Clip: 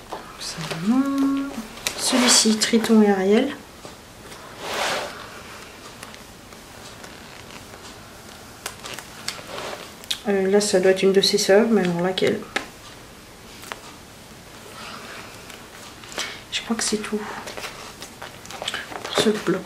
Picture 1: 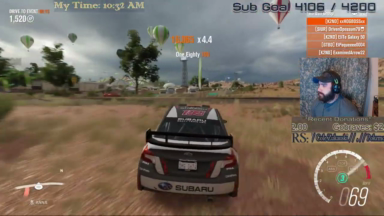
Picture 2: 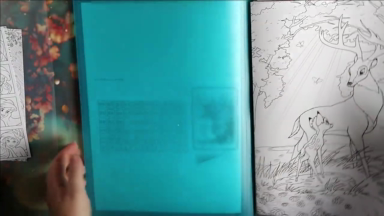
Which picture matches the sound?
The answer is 2